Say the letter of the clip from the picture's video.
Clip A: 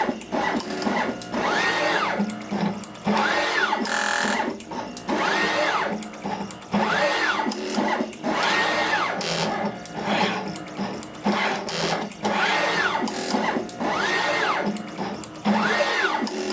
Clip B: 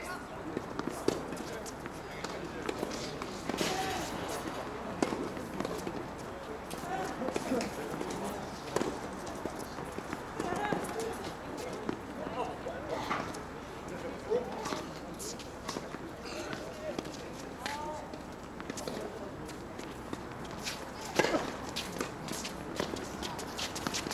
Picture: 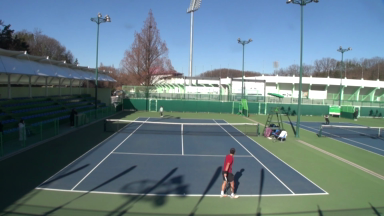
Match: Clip B